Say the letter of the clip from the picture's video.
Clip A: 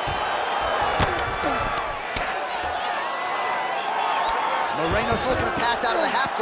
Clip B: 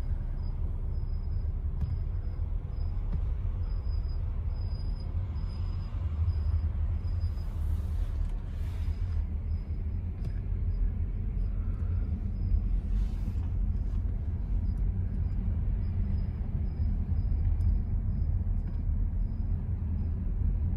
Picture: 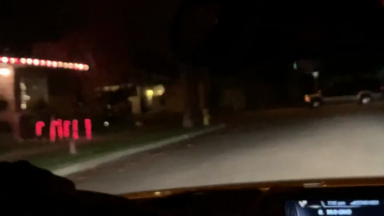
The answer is B